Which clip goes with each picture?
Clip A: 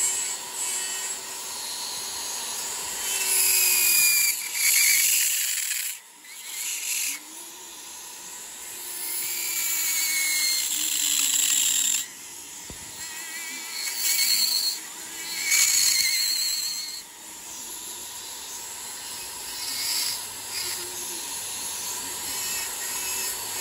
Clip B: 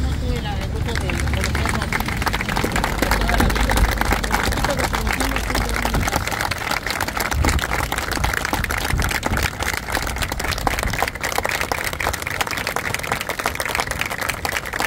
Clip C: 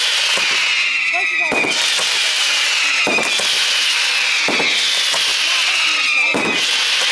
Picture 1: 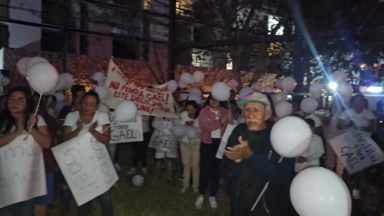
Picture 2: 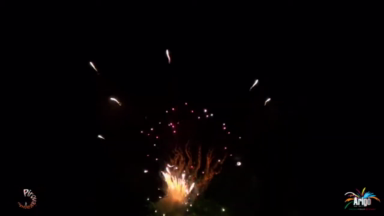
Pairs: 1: B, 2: C